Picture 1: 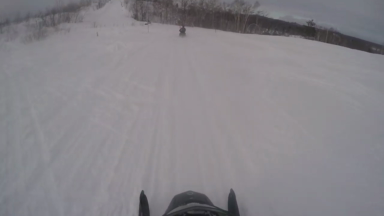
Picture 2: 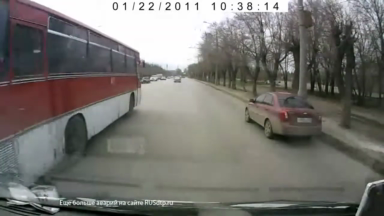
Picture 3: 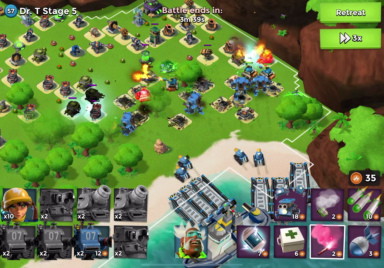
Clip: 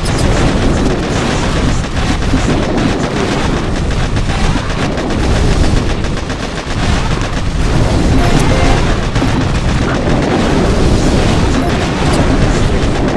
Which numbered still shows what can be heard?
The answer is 3